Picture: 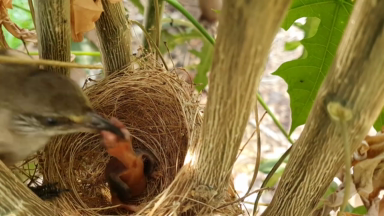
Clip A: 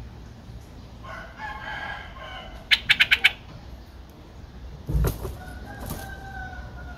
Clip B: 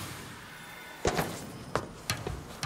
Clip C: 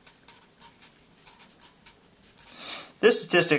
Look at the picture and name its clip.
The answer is A